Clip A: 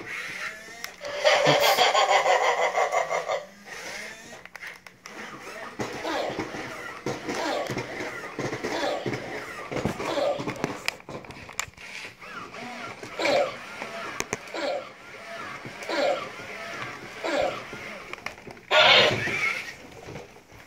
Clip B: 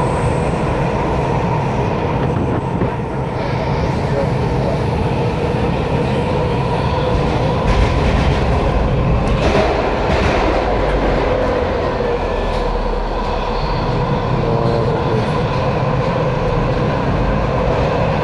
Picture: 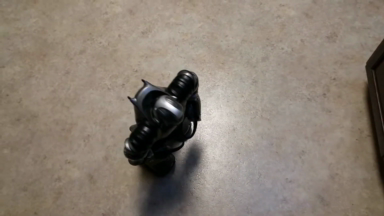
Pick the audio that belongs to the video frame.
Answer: A